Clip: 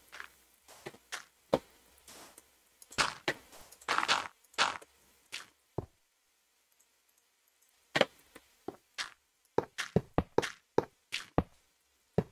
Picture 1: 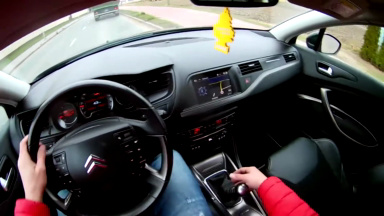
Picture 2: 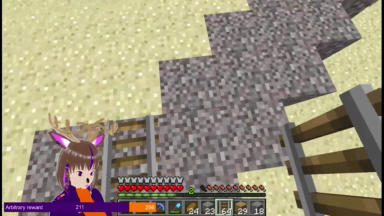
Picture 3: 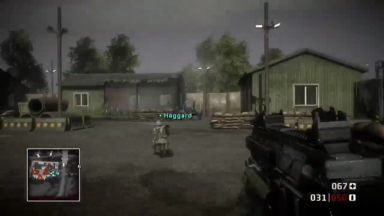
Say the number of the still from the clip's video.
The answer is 2